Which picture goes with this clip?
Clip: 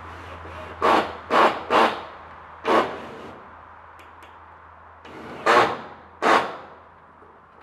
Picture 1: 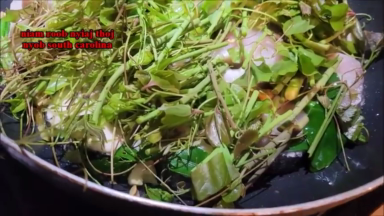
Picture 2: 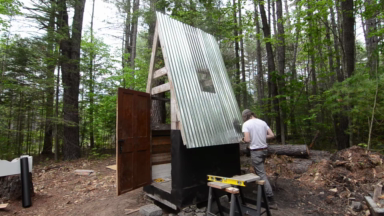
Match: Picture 2